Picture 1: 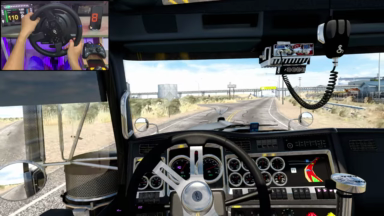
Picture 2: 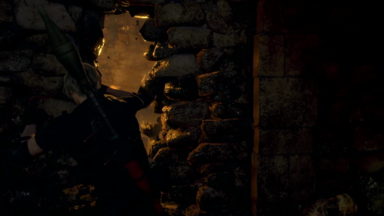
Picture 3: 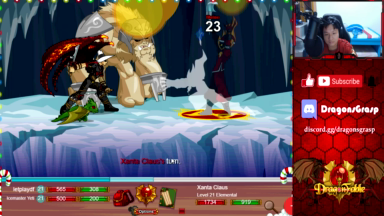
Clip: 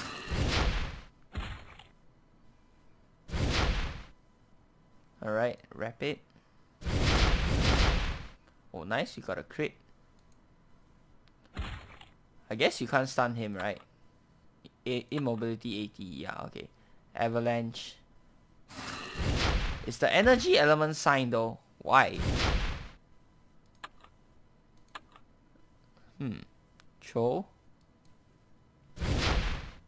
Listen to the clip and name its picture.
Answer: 3